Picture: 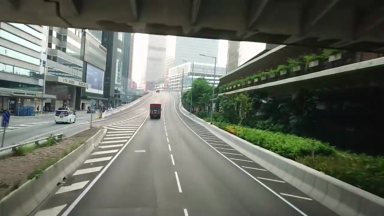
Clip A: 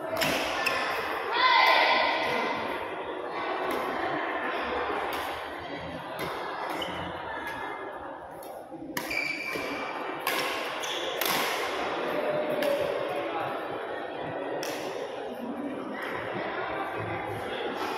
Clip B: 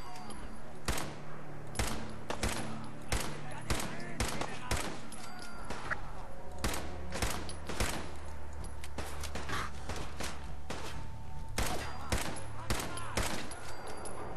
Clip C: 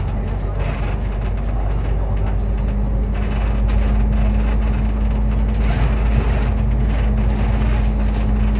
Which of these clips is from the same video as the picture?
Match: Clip C